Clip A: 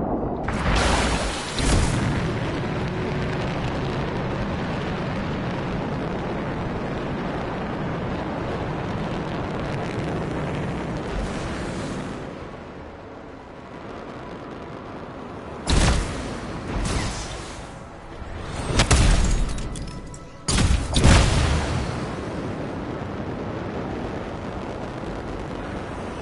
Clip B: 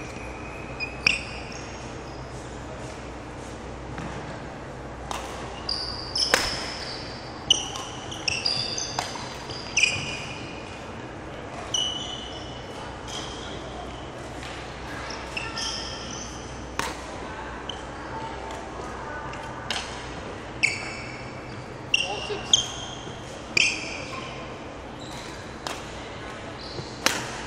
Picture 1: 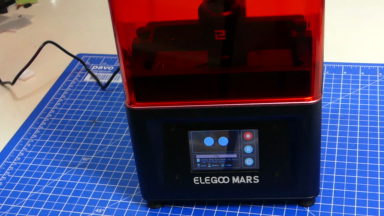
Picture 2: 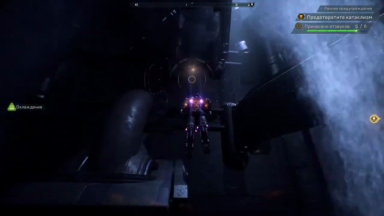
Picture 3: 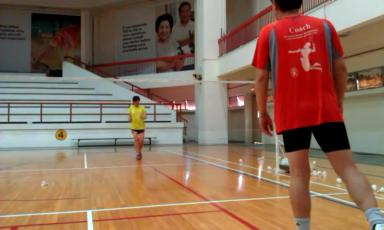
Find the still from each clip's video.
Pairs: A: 2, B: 3